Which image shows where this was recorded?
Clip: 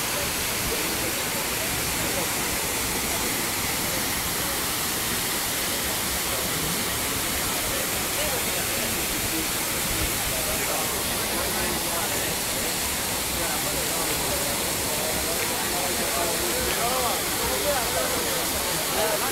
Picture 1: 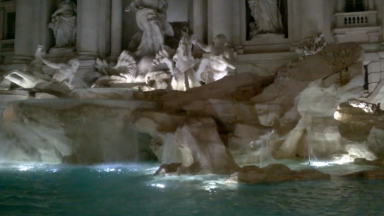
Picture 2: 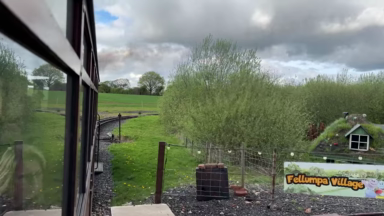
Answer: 1